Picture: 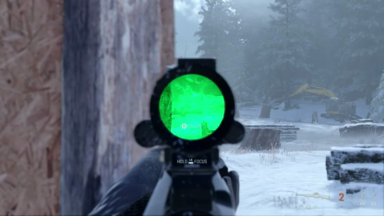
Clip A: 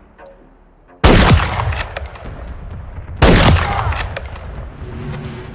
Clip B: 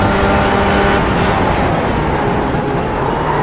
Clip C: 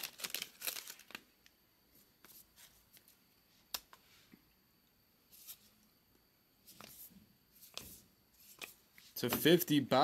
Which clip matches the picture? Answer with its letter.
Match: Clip A